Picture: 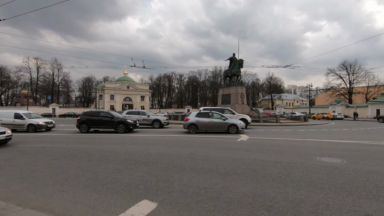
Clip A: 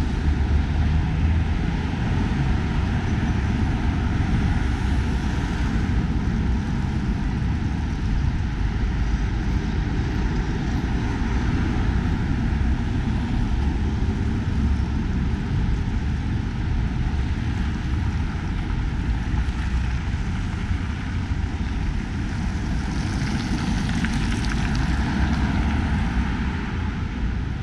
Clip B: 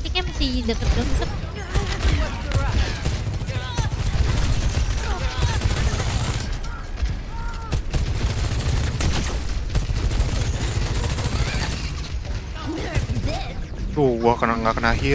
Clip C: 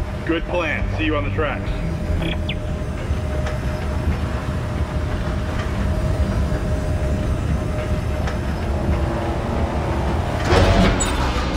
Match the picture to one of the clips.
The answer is A